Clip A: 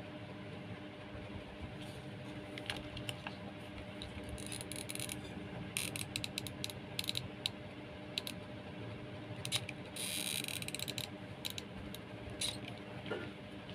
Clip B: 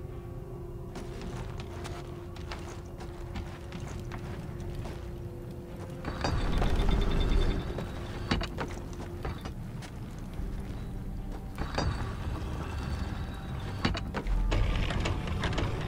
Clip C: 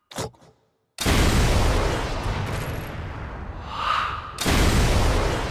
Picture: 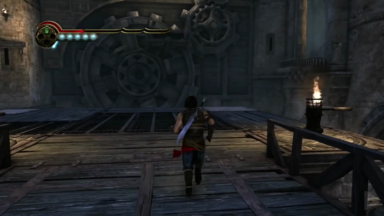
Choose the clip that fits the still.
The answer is B